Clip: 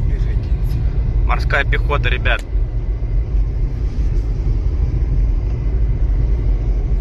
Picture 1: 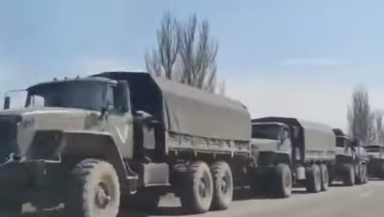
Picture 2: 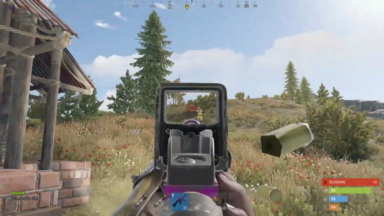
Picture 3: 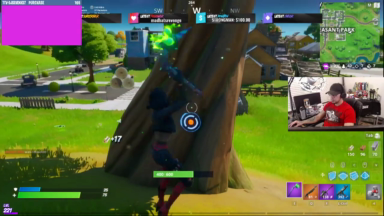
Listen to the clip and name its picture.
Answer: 1